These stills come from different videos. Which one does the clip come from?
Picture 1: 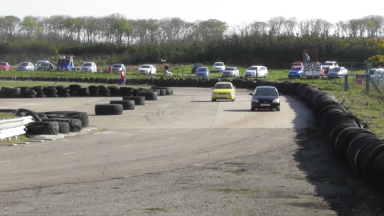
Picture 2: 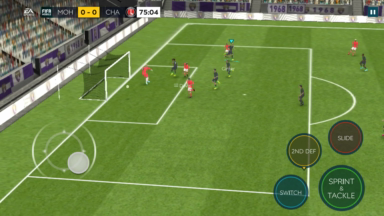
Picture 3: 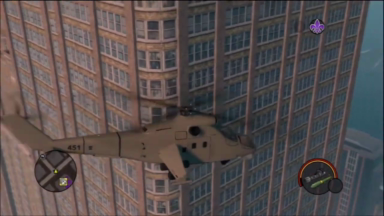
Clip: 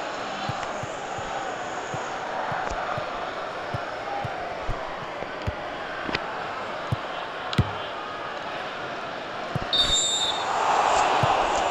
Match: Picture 2